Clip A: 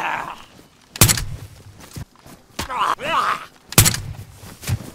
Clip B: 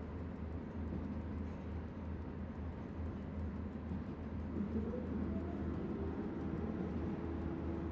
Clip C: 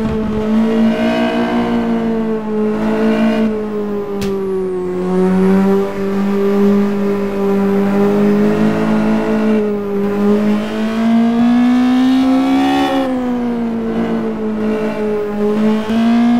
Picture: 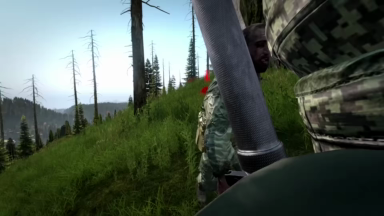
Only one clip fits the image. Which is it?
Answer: A